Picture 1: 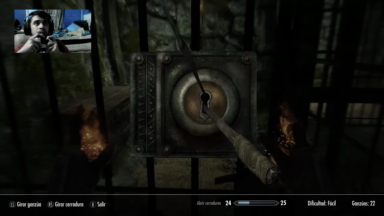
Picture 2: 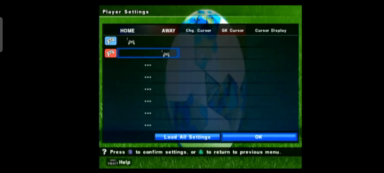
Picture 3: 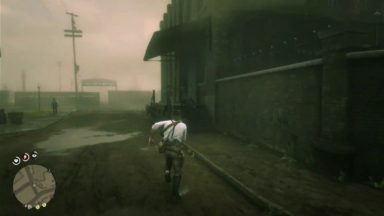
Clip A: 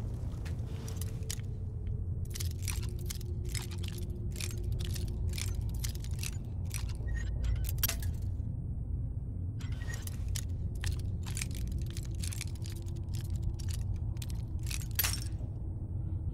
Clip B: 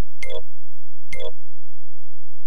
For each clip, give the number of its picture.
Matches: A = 1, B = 2